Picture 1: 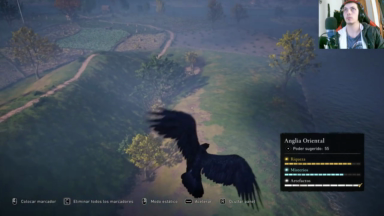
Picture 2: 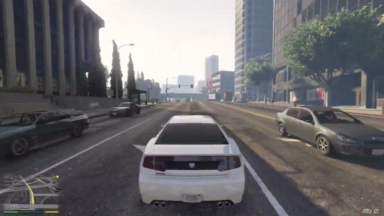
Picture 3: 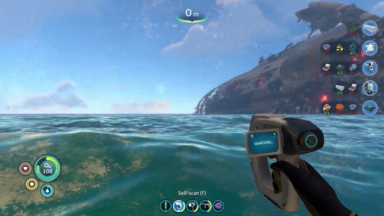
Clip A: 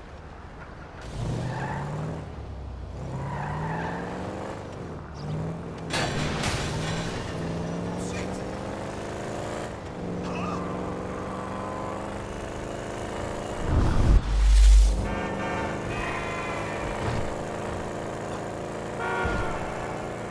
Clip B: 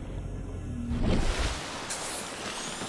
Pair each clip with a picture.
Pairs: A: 2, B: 3